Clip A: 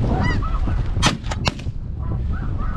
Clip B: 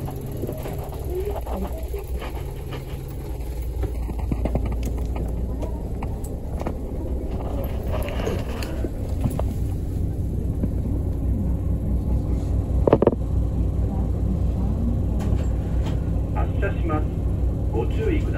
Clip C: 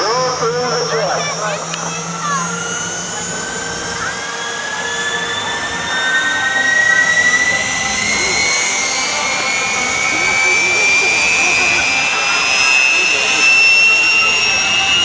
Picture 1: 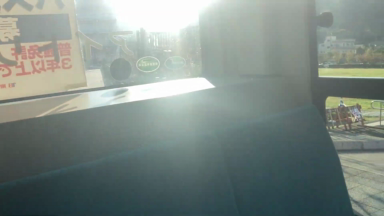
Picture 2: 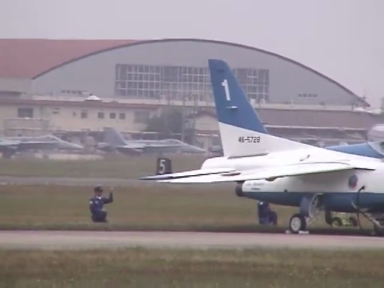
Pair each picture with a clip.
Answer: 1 B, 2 C